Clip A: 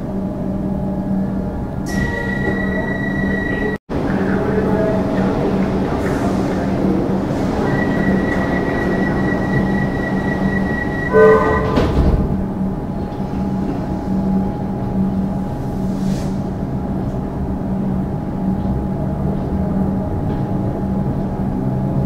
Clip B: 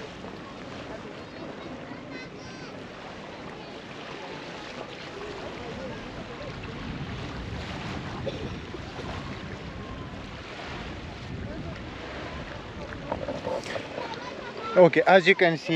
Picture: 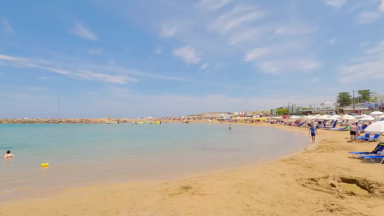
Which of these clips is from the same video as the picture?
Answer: B